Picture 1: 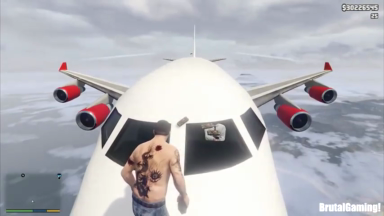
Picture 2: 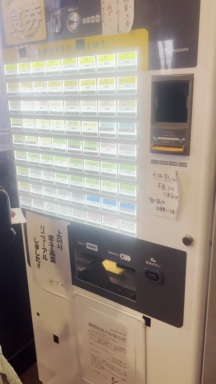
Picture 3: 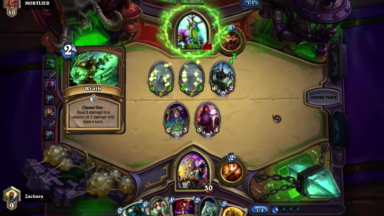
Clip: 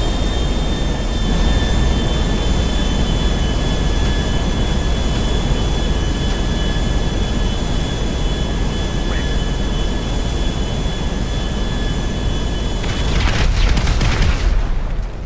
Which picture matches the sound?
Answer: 1